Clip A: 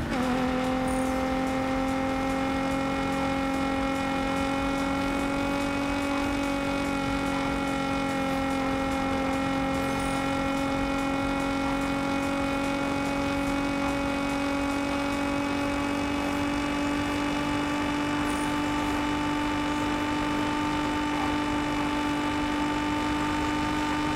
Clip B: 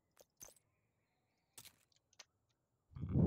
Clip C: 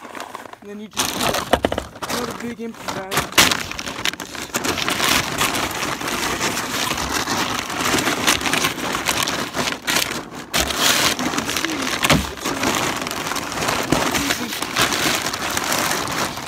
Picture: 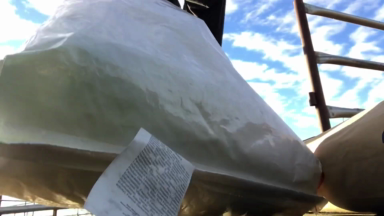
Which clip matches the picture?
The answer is C